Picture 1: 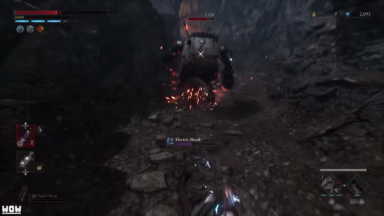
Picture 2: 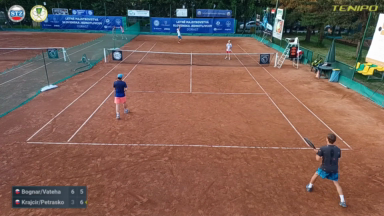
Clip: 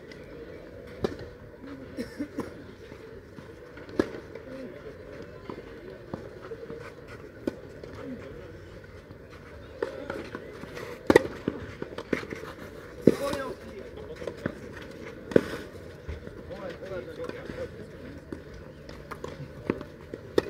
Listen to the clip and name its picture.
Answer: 2